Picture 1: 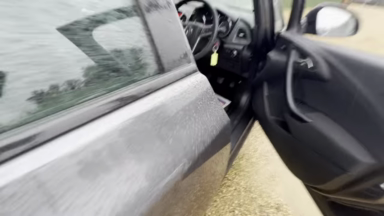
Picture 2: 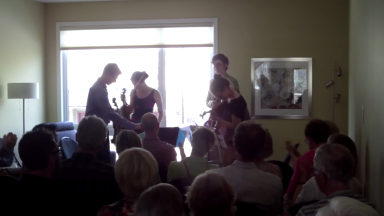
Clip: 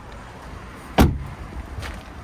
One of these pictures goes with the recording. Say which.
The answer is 1